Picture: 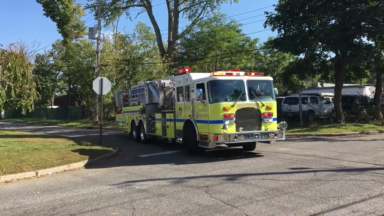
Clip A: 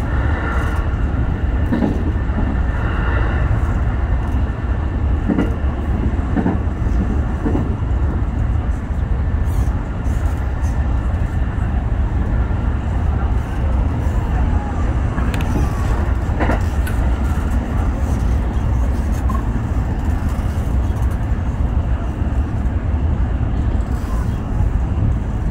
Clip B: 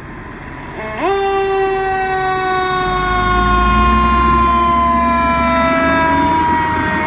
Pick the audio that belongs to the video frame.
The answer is B